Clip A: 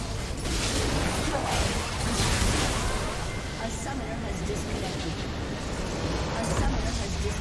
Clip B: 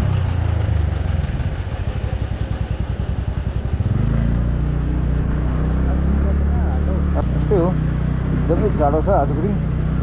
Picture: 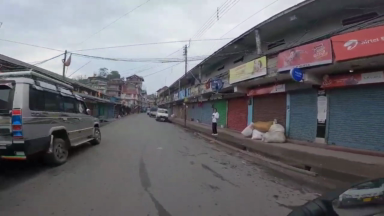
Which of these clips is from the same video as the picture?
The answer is B